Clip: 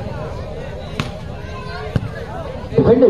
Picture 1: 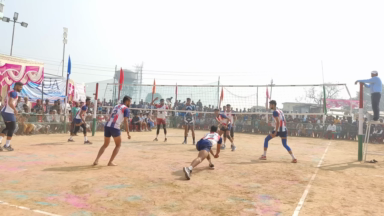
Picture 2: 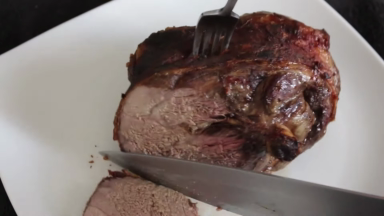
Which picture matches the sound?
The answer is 1